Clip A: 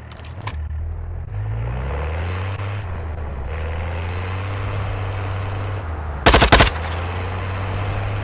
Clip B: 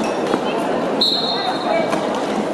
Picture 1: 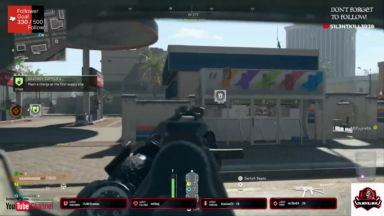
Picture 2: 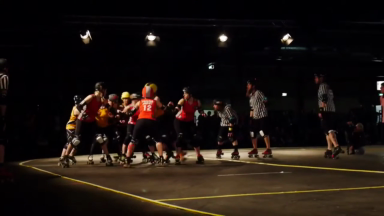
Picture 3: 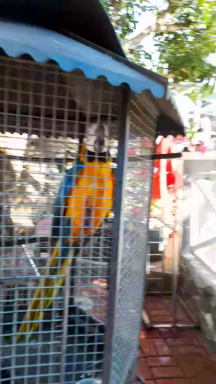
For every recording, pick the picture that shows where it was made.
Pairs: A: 1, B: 2